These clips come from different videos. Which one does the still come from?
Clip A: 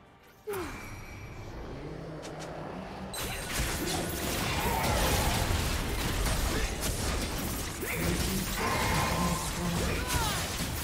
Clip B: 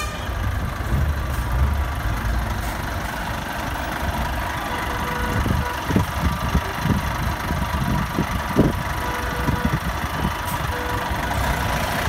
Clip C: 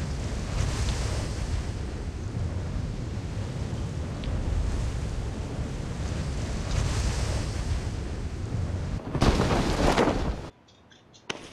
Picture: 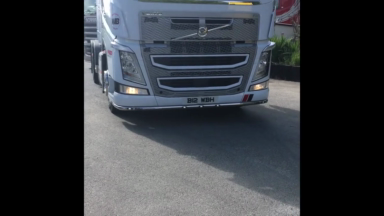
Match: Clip B